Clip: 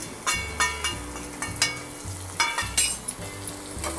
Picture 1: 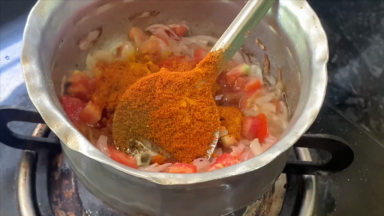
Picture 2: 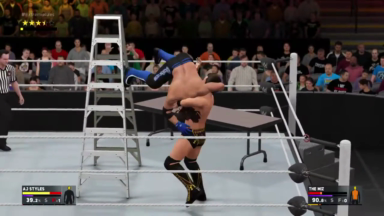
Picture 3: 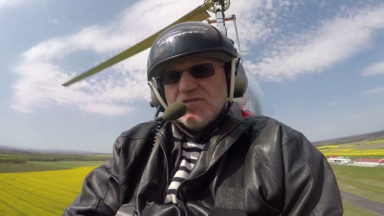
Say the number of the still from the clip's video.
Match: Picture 1